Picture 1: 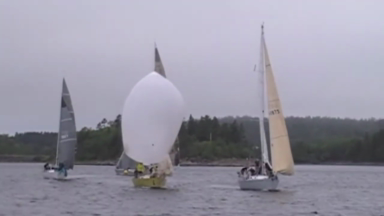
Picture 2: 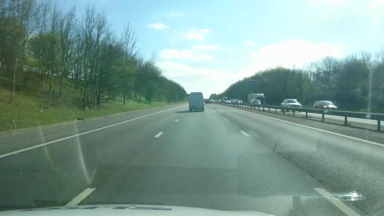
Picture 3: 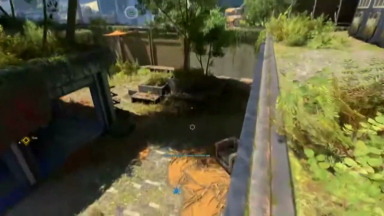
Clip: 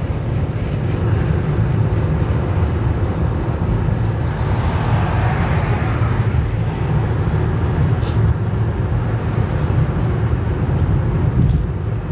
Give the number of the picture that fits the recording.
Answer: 2